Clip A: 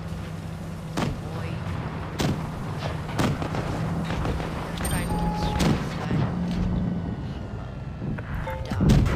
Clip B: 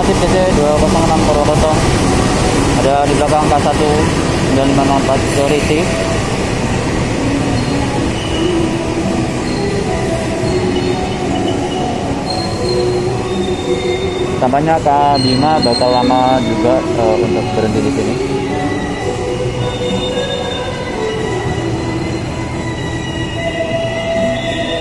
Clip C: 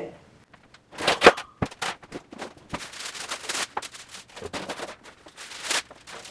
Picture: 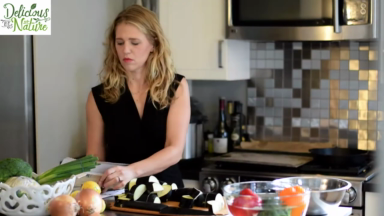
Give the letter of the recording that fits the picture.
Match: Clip C